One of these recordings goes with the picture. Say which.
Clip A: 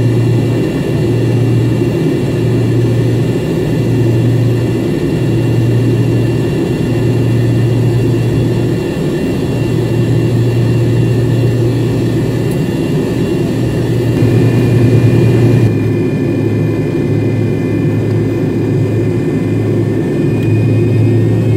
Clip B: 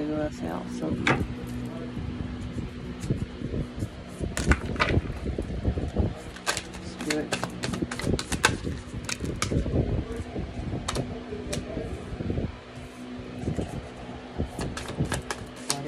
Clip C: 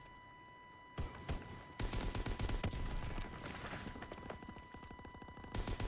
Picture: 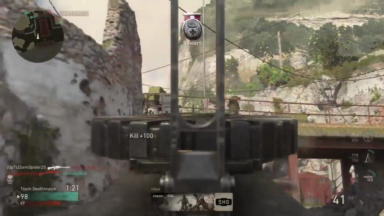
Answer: C